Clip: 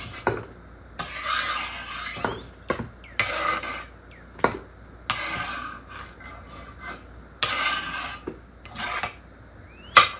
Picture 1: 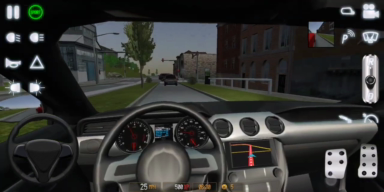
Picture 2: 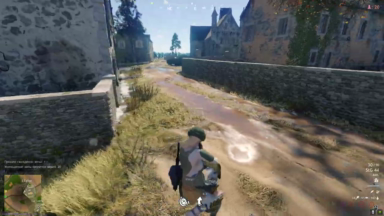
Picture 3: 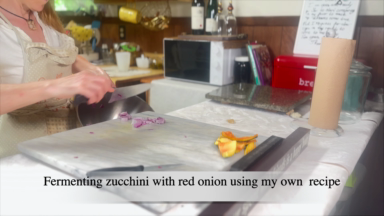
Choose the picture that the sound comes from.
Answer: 3